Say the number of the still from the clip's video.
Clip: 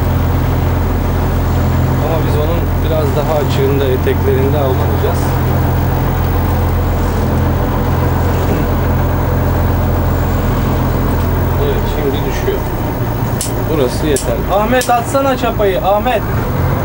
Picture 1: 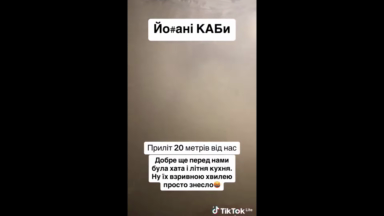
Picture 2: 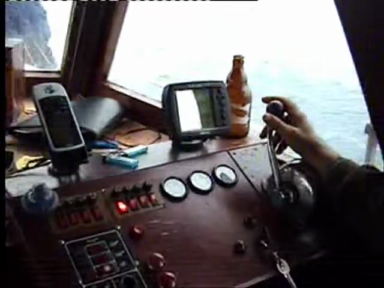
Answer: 2